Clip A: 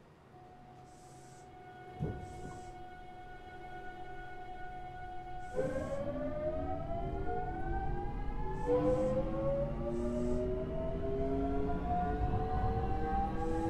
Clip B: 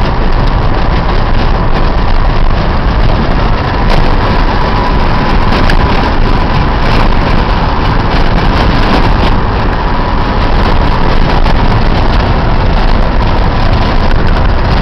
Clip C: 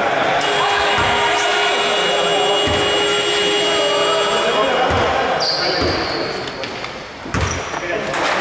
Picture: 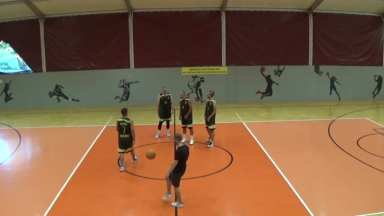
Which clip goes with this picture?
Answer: C